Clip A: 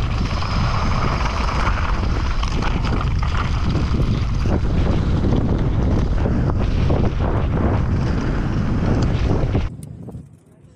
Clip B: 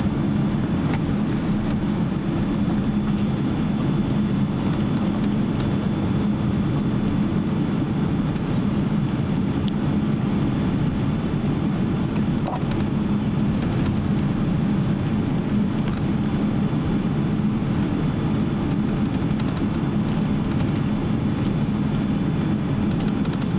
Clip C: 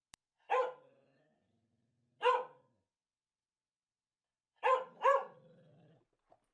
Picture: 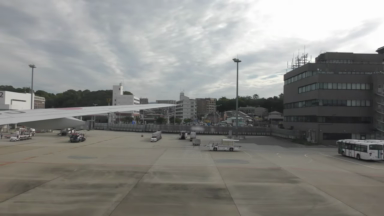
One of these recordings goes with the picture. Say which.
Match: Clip B